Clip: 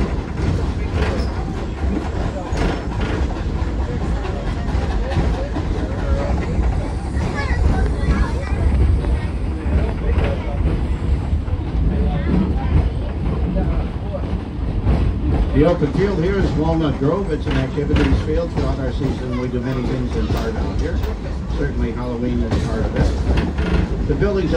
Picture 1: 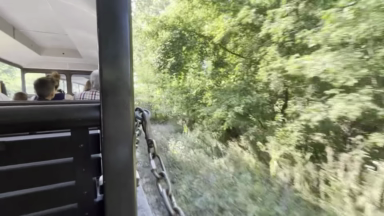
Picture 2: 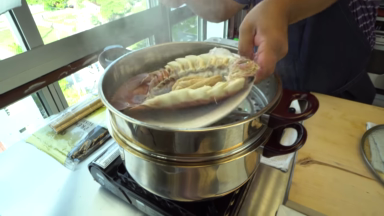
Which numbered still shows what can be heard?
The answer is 1